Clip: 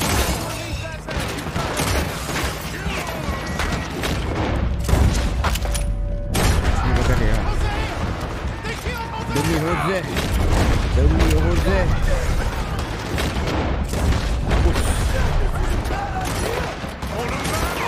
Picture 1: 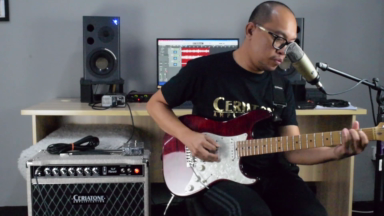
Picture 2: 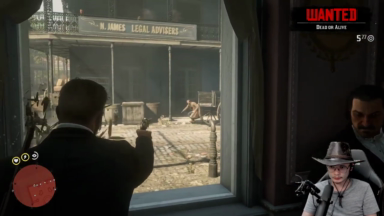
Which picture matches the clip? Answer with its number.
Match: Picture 2